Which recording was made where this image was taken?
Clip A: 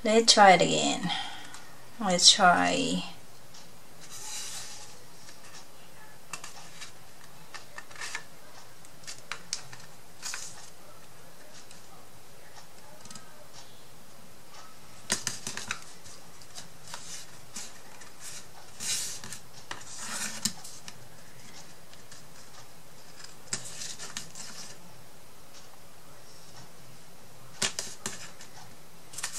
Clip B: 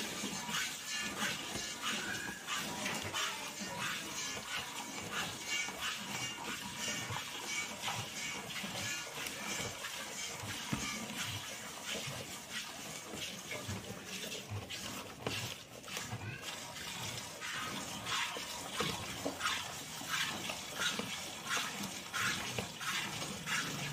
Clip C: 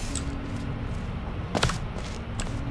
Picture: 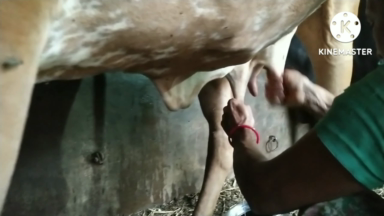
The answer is B